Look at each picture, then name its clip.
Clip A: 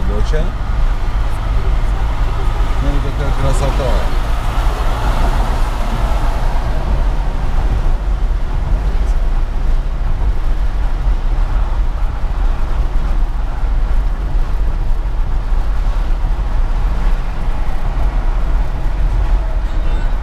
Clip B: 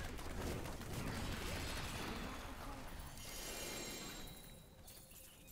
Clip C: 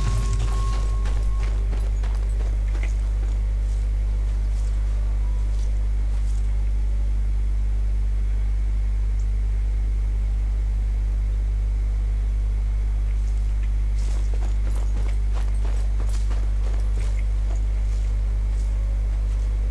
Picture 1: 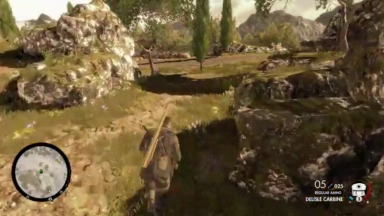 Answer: C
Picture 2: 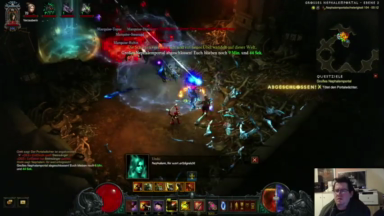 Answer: B